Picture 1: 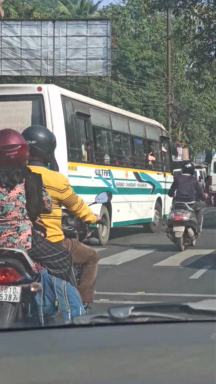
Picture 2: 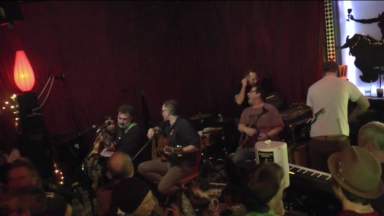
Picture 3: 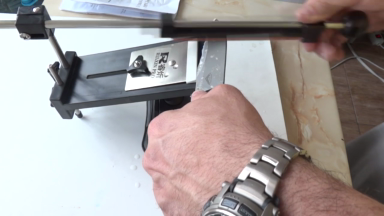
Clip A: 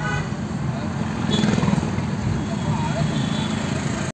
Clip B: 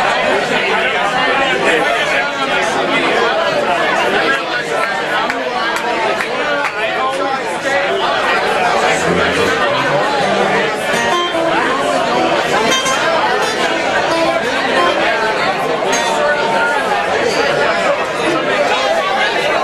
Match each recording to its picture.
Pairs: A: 1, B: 2